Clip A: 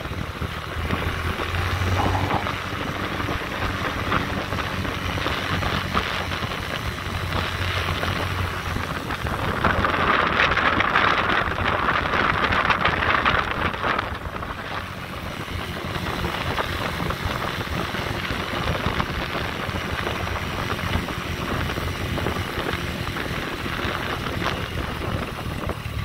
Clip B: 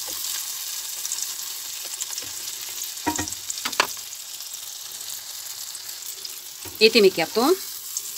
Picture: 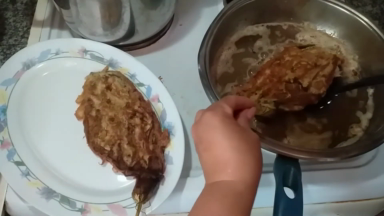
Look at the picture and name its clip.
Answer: B